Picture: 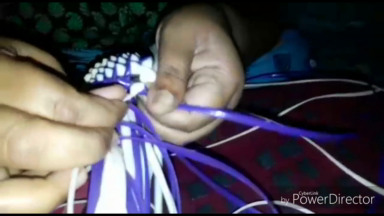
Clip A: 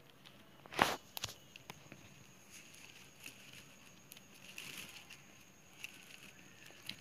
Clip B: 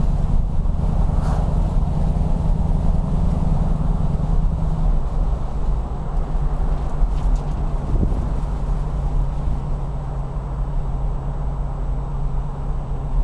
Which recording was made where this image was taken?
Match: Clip A